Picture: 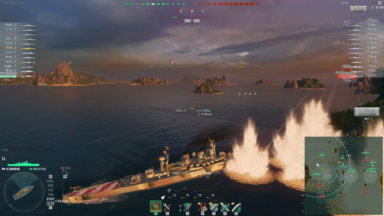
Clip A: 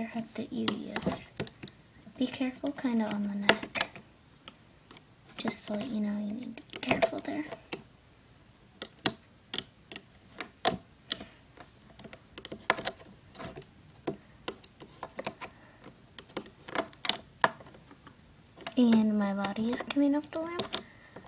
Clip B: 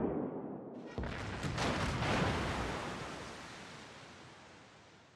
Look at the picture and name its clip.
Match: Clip B